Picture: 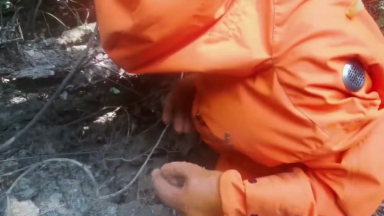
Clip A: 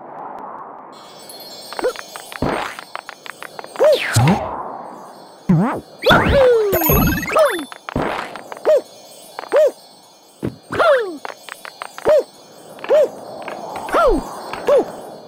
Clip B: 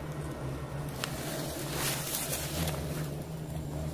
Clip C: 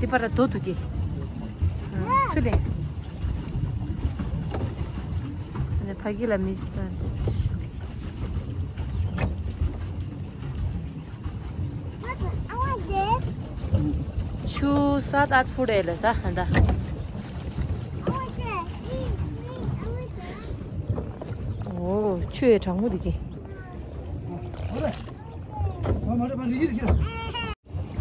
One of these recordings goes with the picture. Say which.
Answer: B